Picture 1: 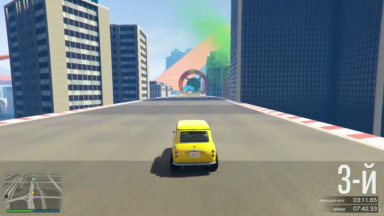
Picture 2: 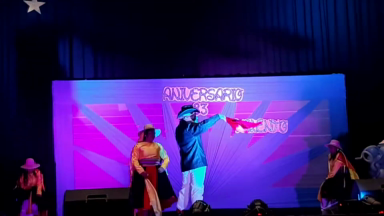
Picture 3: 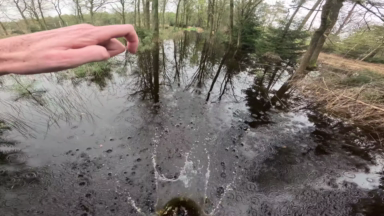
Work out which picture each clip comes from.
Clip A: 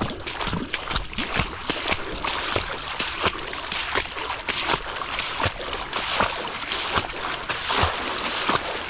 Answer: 3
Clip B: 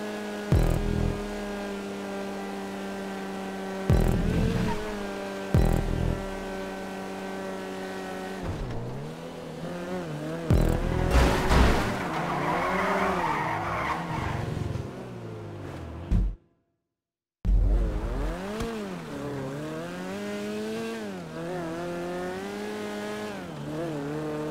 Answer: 1